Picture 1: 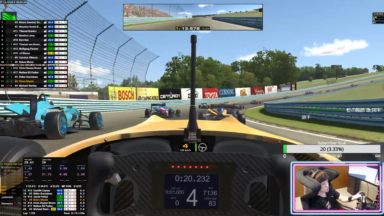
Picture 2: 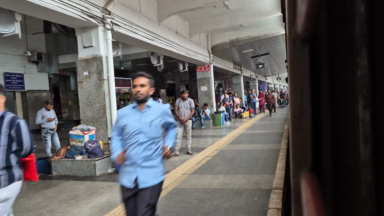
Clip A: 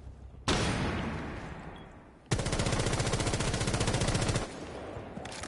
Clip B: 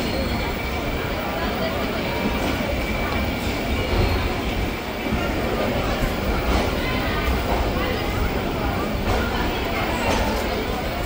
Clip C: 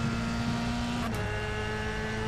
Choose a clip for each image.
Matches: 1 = C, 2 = B